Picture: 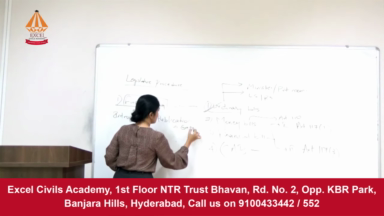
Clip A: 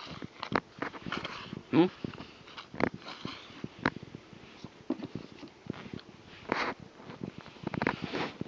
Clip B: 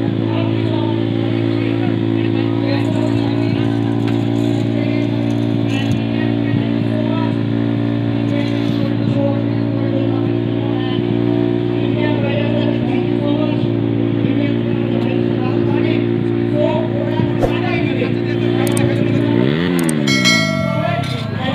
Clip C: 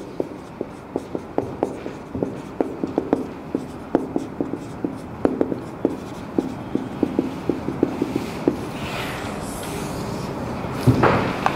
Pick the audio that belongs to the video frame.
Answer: C